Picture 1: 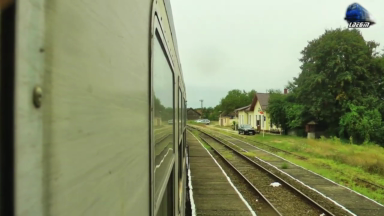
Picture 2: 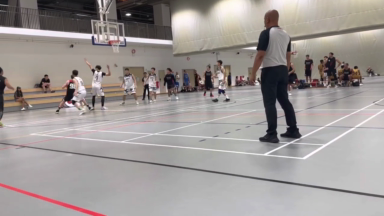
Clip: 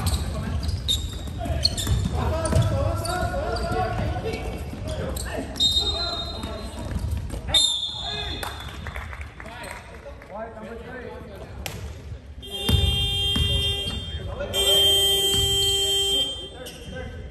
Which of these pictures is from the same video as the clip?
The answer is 2